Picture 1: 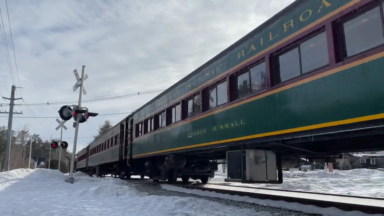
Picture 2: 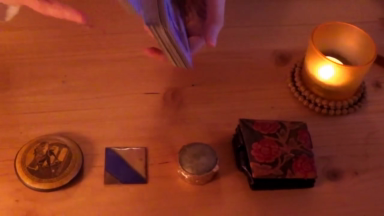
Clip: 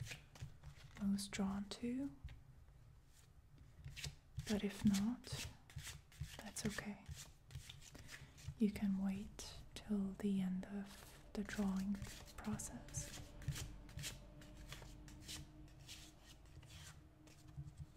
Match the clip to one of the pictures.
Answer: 2